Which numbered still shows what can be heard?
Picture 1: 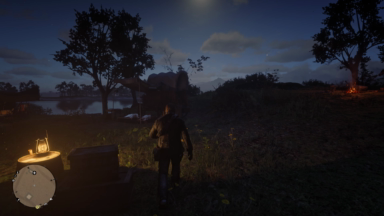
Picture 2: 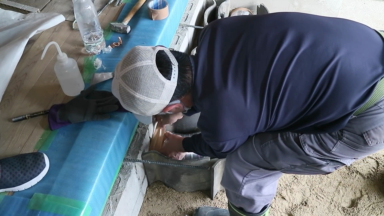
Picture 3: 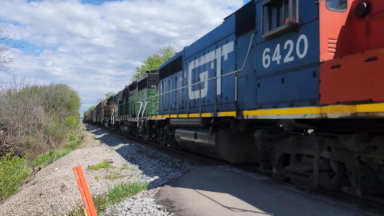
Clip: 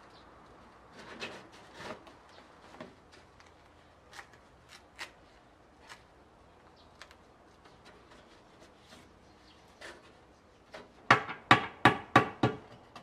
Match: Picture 2